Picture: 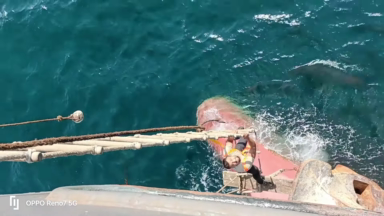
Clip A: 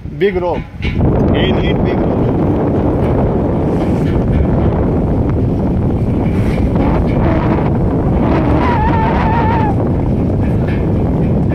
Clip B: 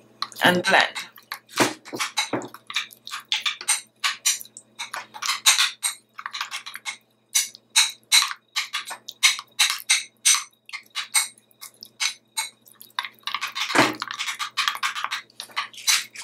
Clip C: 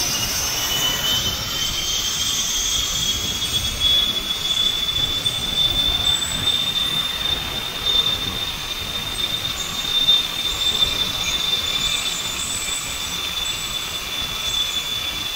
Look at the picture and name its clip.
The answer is A